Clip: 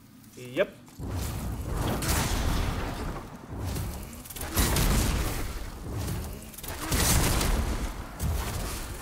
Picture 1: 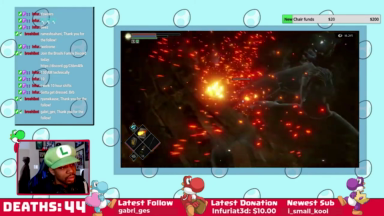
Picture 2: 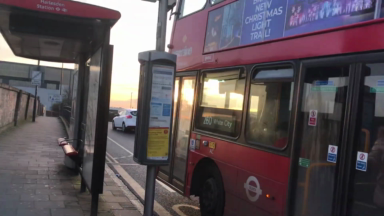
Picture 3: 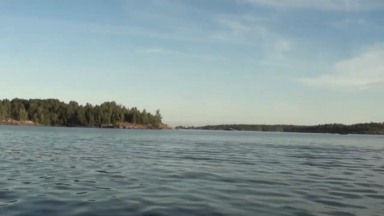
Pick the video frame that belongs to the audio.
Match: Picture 1